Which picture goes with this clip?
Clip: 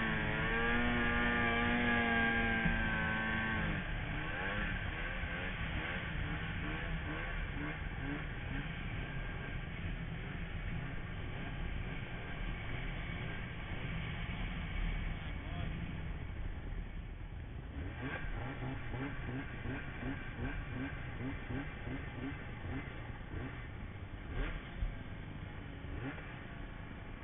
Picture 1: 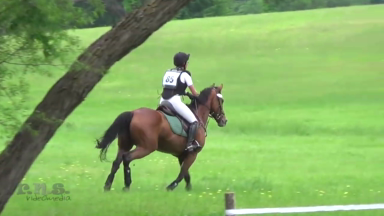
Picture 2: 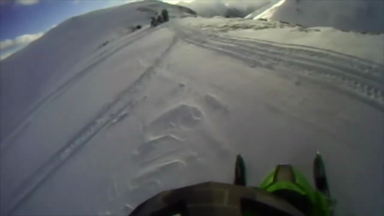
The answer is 2